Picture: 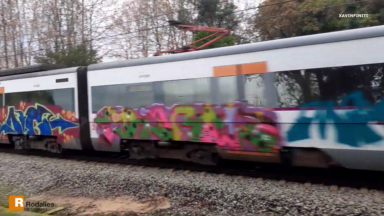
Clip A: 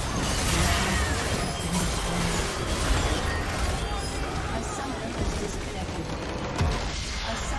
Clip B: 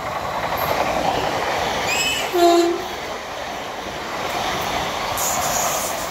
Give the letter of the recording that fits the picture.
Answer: B